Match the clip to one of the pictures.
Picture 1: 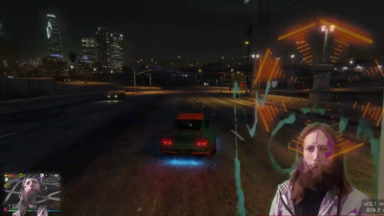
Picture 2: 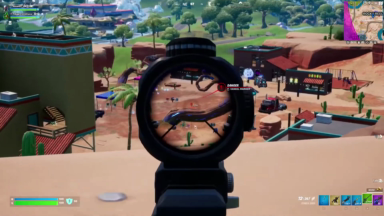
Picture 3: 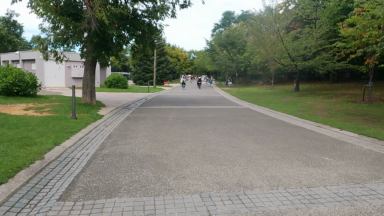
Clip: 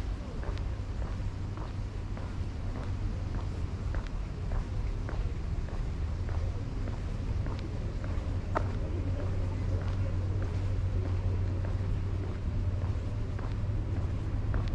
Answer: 3